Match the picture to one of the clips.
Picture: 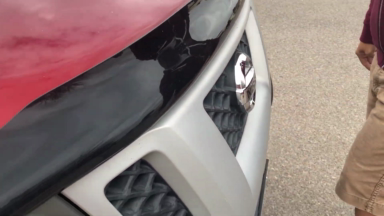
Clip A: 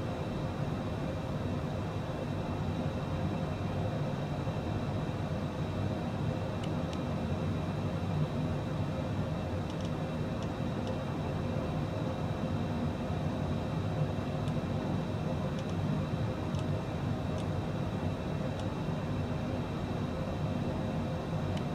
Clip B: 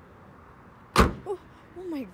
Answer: B